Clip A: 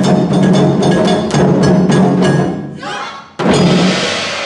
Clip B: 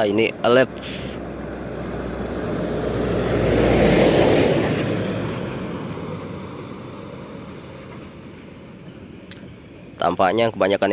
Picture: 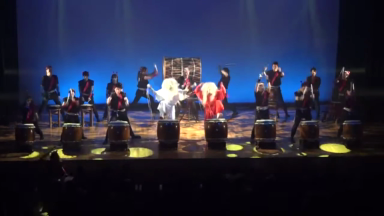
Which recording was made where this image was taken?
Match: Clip A